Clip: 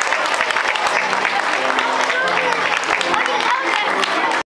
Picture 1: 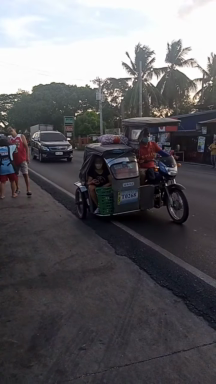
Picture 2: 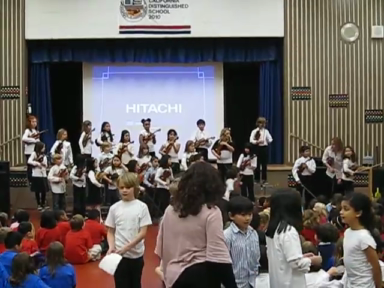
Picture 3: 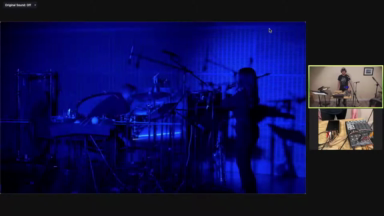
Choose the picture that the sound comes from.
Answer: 2